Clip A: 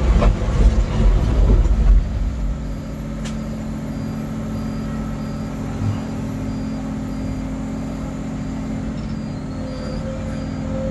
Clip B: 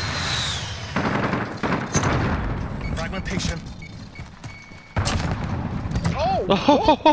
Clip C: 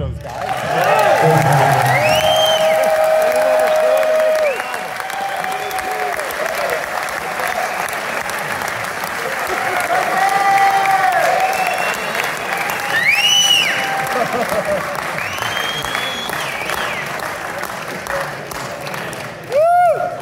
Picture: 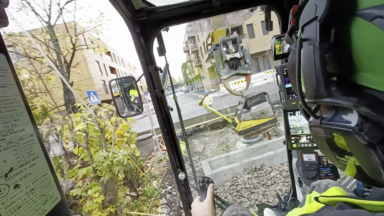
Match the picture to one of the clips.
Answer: A